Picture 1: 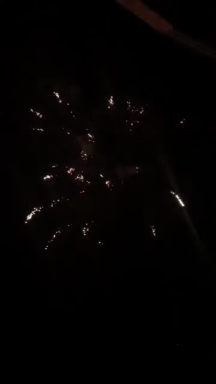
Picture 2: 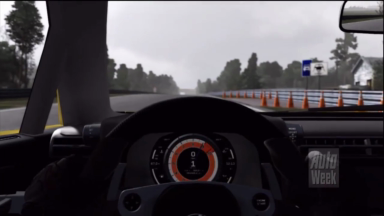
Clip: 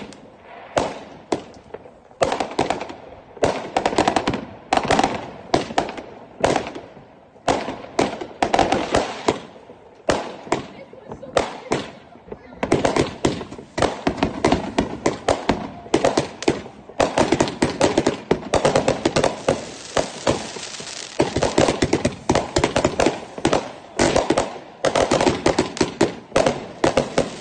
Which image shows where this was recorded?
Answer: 1